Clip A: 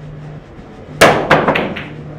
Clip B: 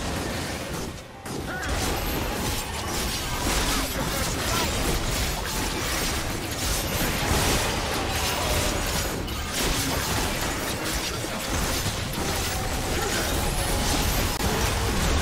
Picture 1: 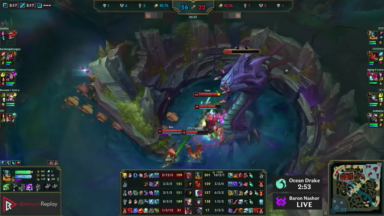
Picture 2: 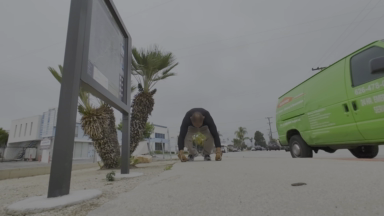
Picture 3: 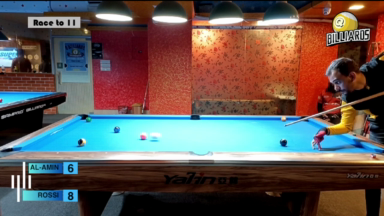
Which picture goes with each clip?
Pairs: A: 3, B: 1